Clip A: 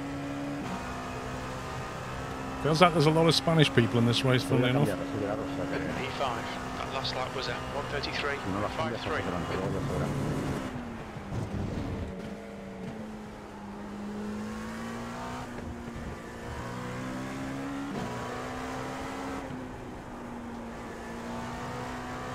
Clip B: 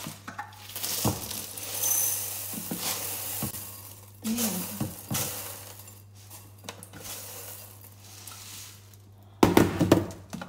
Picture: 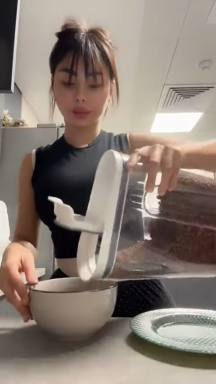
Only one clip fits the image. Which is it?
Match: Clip B